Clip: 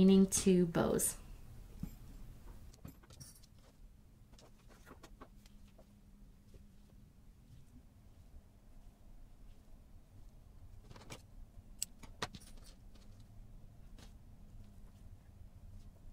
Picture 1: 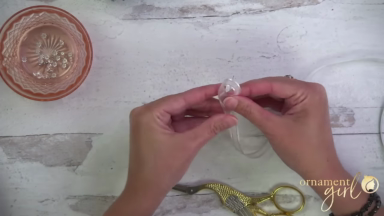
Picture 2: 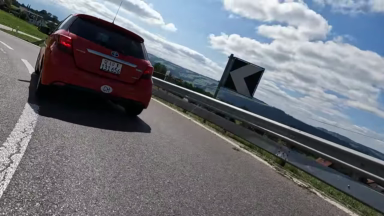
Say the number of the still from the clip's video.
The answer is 1